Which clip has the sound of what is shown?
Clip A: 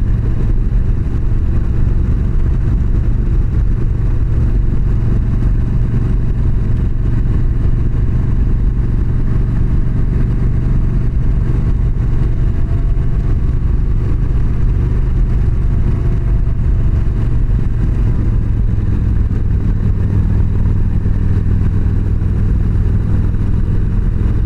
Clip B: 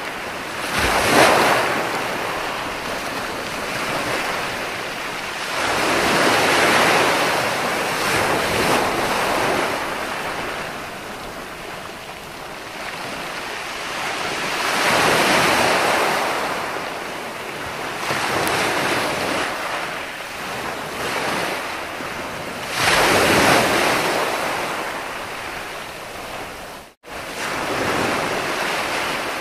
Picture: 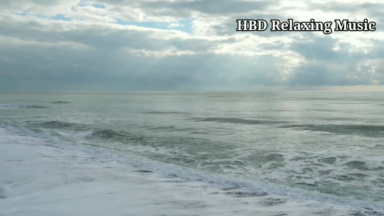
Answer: B